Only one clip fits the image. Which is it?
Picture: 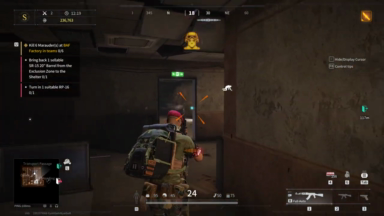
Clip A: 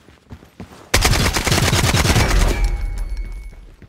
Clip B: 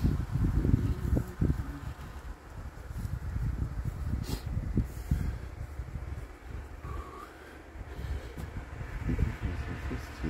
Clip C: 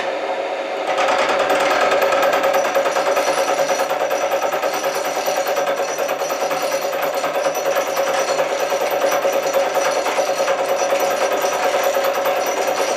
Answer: A